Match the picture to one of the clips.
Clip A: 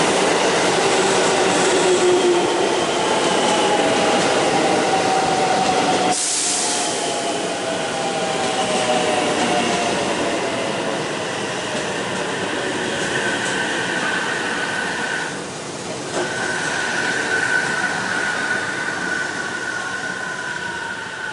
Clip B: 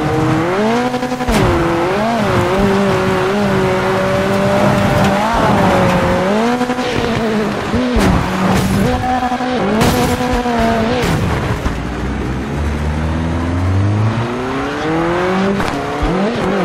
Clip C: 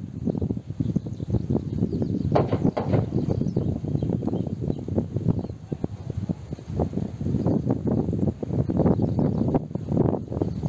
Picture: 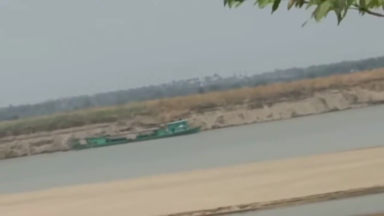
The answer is C